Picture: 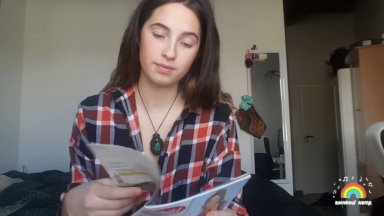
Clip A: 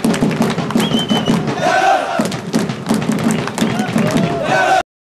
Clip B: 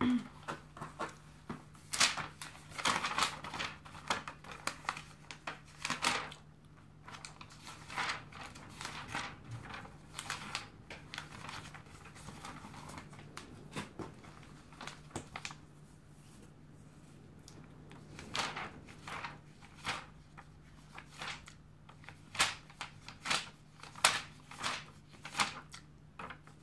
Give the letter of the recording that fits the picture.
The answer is B